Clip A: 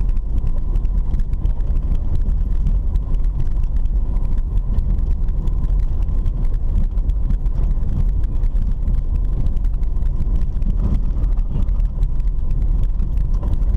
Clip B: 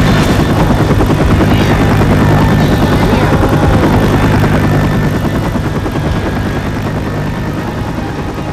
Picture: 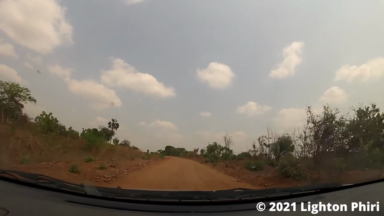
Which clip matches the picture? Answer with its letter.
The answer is A